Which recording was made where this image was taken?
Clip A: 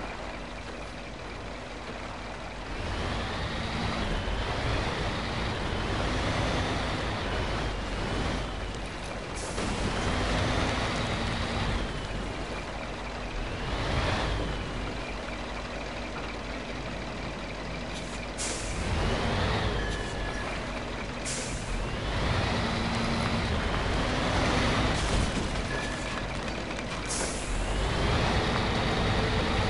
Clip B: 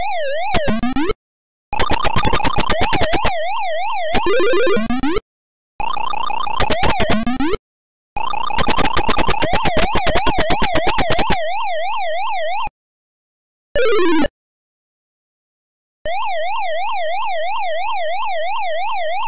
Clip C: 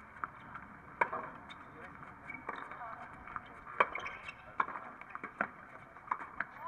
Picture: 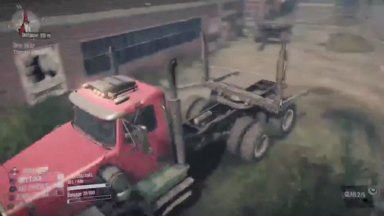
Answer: A